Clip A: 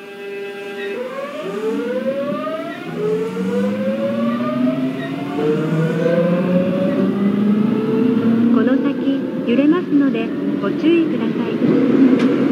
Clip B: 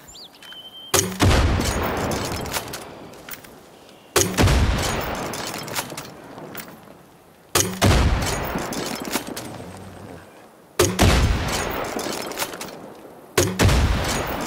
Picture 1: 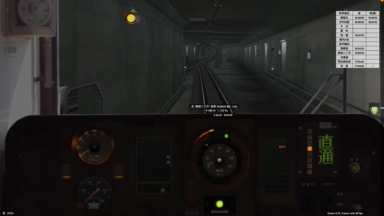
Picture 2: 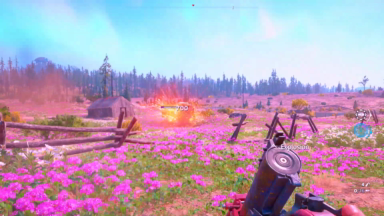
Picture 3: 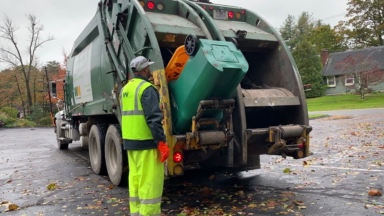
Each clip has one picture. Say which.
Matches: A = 1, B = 2